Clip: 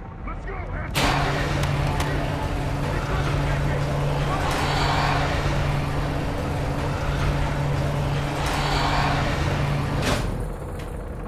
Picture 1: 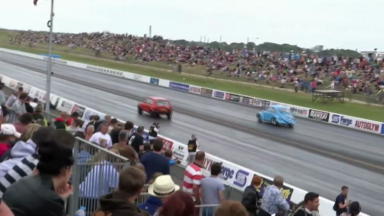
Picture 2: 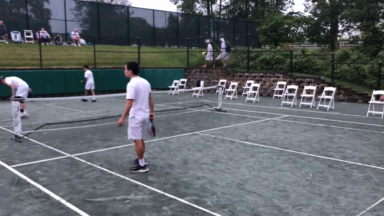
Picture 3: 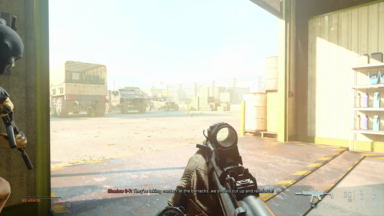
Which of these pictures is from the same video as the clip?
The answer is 3